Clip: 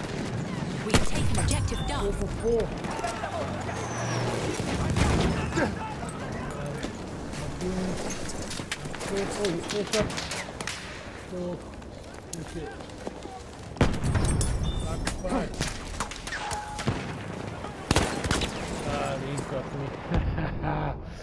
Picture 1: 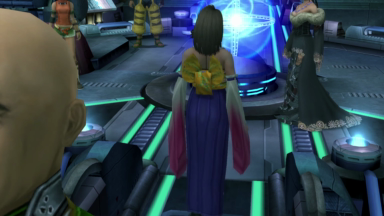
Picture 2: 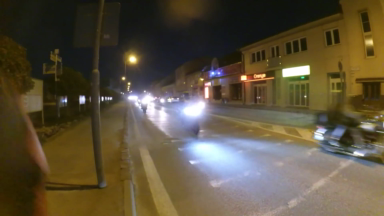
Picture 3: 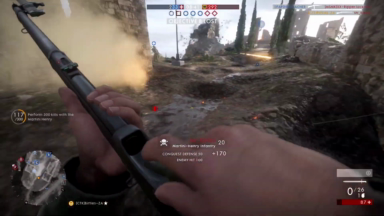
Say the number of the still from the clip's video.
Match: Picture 3